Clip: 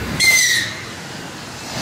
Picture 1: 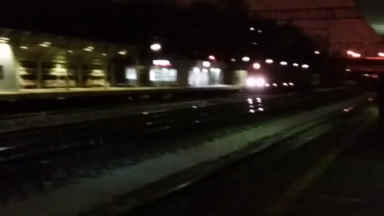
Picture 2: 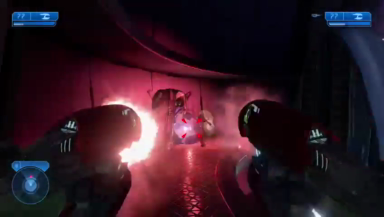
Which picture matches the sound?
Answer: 1